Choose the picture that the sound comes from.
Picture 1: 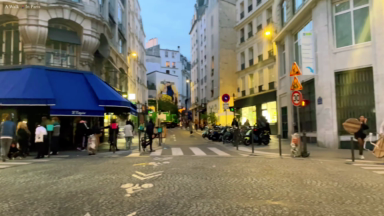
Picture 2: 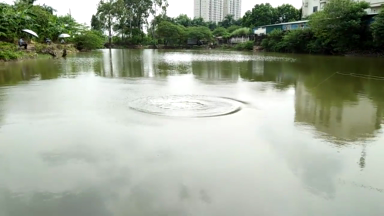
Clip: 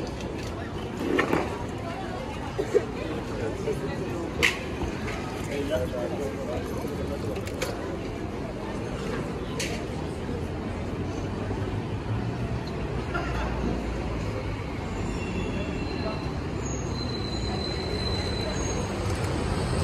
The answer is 1